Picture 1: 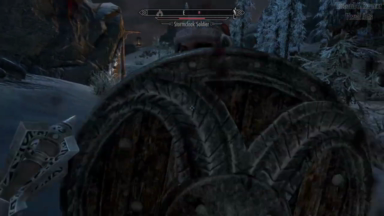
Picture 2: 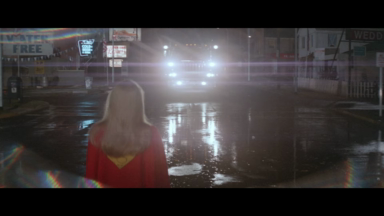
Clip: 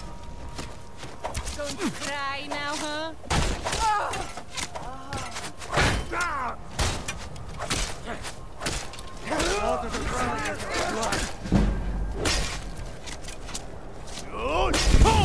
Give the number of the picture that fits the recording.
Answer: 1